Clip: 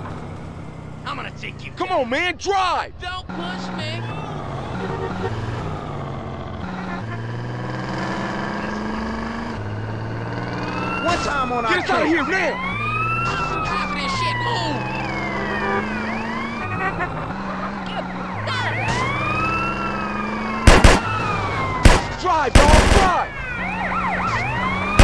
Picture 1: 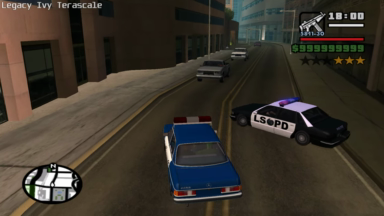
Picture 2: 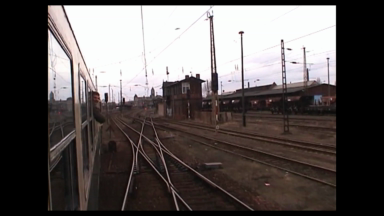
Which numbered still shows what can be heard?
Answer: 1